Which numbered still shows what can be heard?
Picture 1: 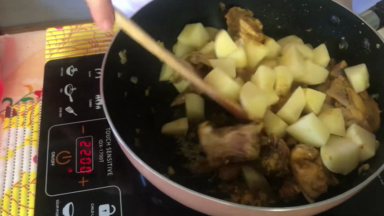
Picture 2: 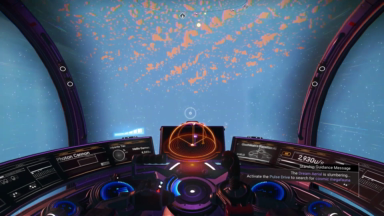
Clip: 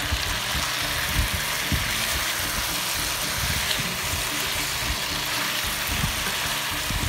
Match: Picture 1